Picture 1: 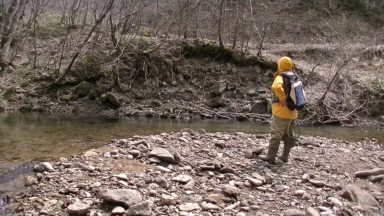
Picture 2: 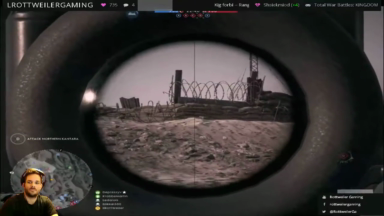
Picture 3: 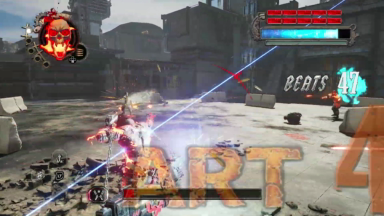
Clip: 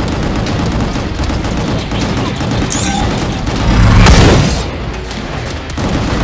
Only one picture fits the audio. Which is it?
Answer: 3